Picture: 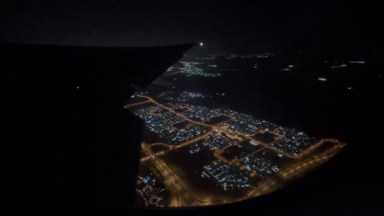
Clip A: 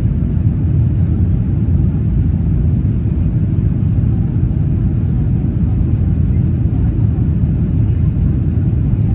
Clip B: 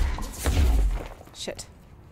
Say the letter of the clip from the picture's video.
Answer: A